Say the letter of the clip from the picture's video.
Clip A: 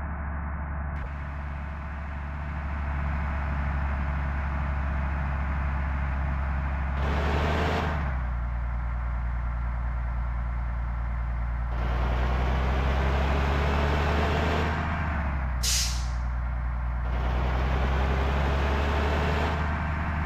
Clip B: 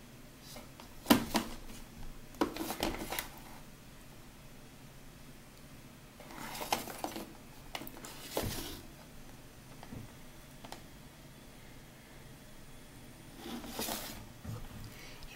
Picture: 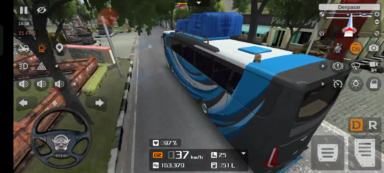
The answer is A